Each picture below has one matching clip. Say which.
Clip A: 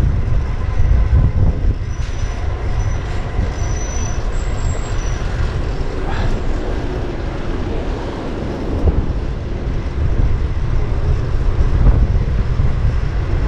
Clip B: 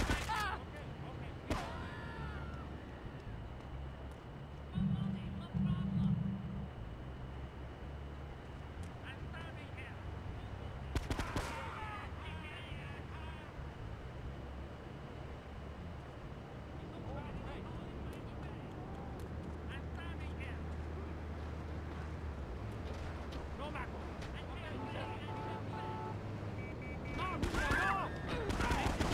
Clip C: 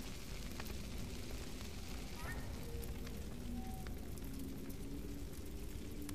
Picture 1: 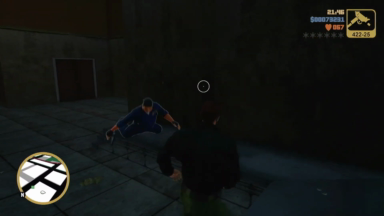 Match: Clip B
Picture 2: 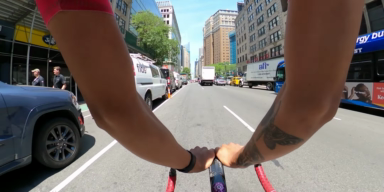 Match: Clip A